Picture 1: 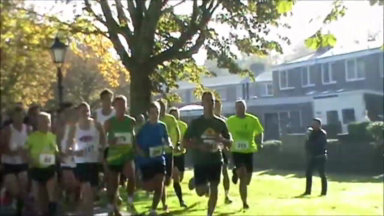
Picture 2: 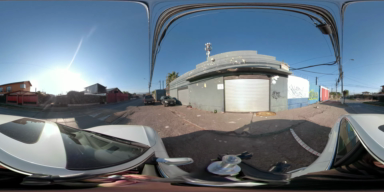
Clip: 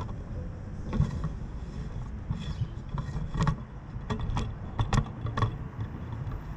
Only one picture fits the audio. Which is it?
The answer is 2